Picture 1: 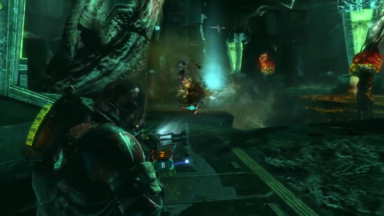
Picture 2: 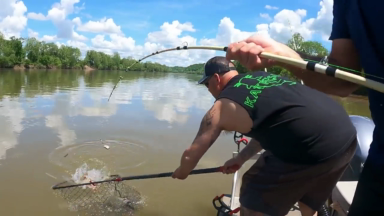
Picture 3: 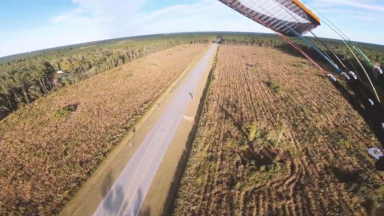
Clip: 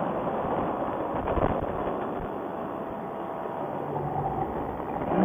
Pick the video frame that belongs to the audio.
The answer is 3